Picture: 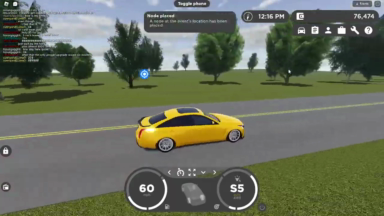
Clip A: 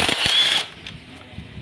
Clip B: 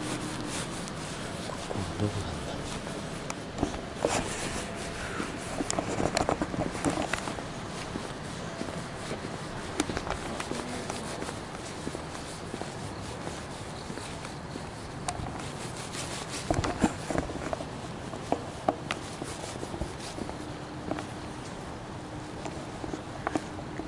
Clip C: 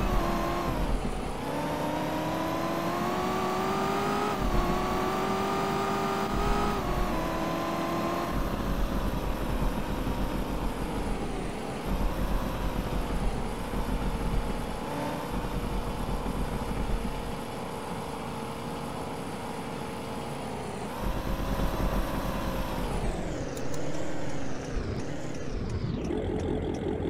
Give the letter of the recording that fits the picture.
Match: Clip C